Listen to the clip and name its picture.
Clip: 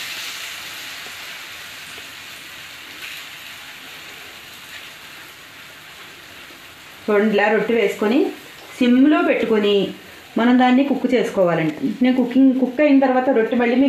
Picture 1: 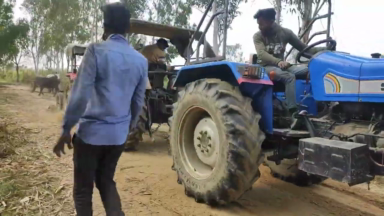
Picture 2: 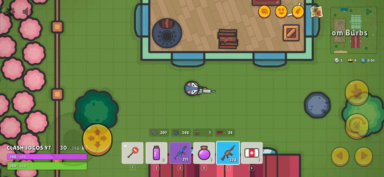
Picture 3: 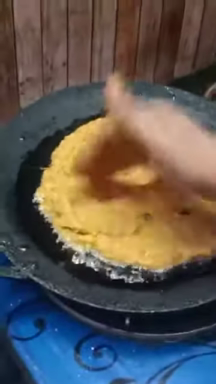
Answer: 3